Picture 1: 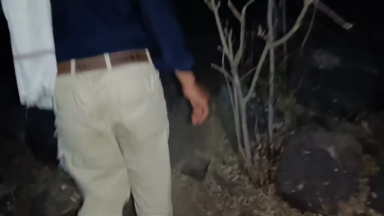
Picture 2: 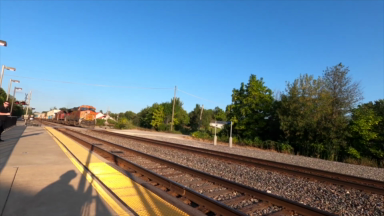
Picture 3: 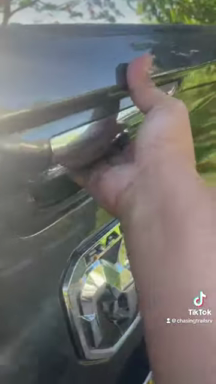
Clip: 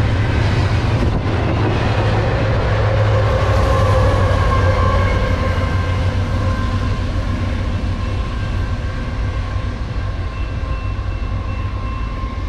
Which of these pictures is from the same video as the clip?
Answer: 2